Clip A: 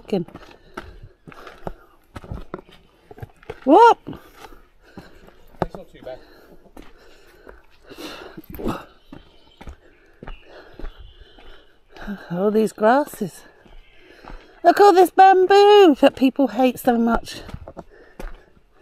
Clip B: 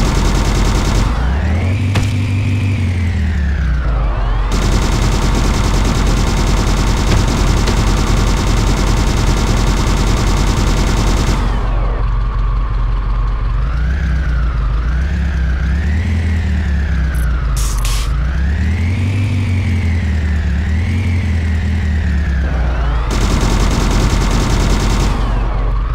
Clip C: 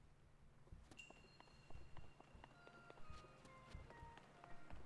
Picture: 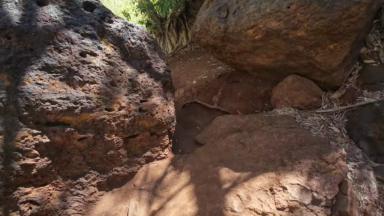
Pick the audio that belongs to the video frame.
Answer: A